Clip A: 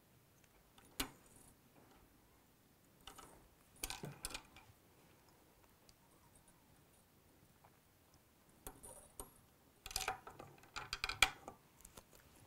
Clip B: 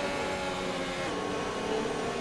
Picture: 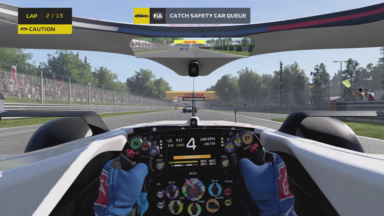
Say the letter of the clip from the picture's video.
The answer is B